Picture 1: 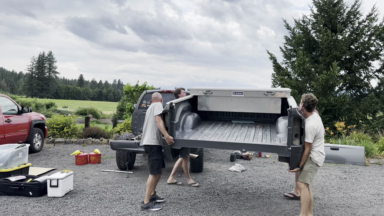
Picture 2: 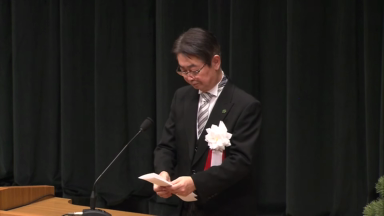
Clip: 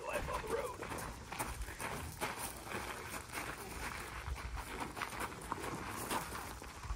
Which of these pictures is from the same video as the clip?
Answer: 1